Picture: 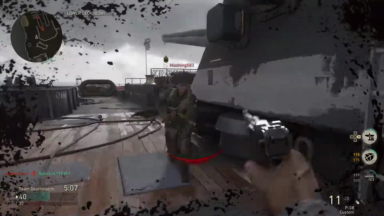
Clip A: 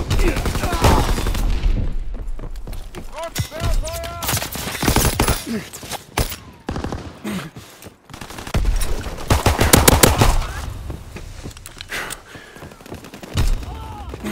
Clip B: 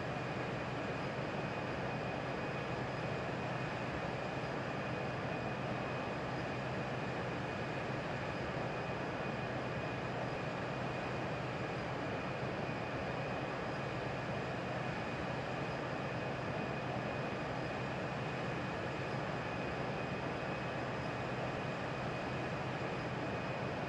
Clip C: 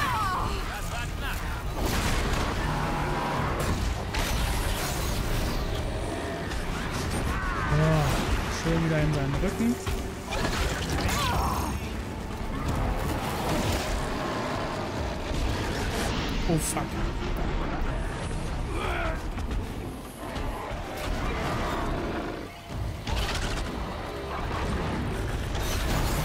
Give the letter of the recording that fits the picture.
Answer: A